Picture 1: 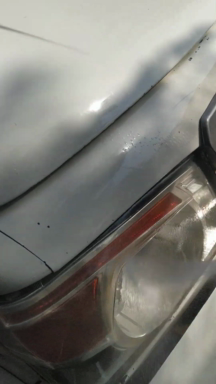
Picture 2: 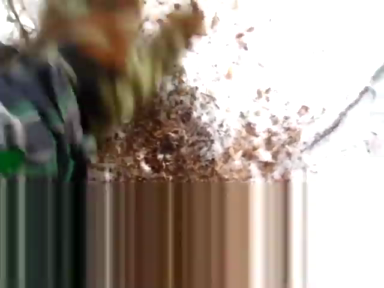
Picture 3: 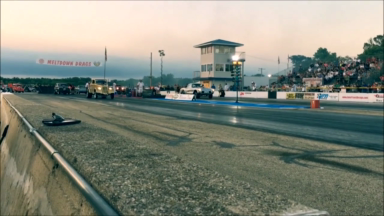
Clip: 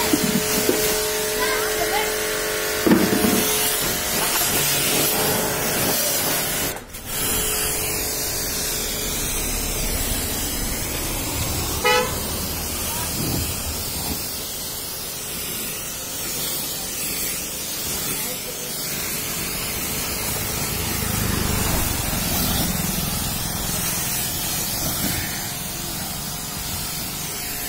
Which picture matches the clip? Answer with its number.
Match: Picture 1